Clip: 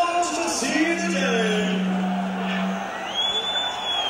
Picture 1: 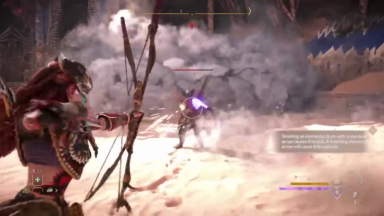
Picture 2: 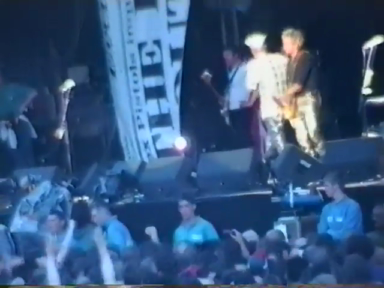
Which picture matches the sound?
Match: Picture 2